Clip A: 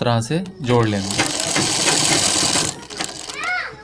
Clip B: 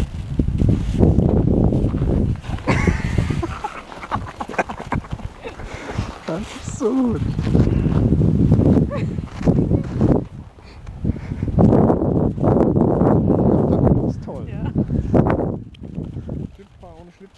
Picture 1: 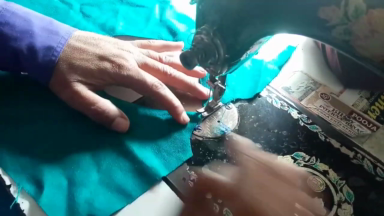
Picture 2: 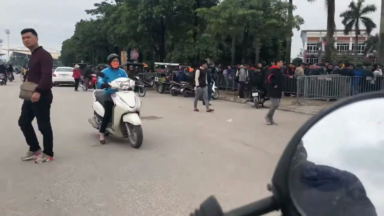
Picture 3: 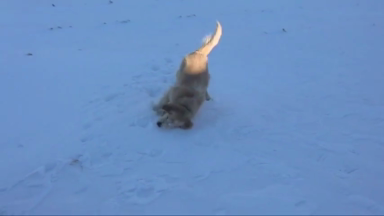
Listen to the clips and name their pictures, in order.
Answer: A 1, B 3